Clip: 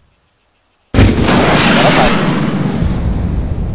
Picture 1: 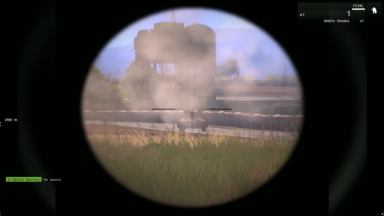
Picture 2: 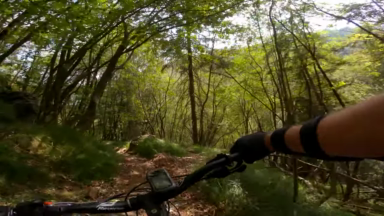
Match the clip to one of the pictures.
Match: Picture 1